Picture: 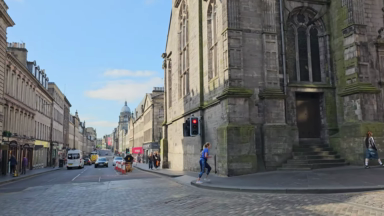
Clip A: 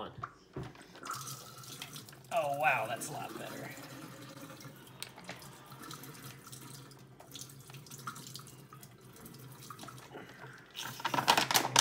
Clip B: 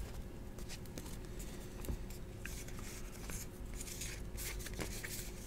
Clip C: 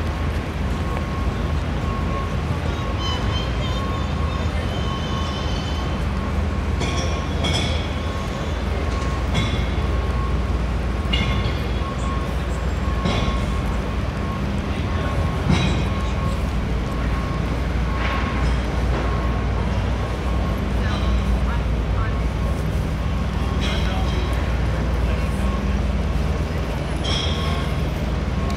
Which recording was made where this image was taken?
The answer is C